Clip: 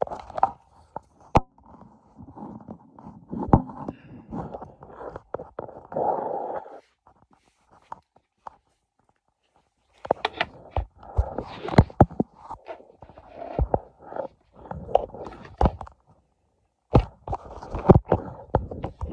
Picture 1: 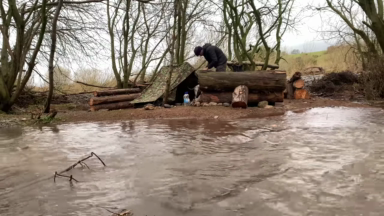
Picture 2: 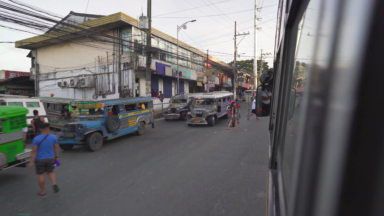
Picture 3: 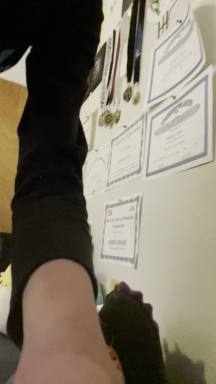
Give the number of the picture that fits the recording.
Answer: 3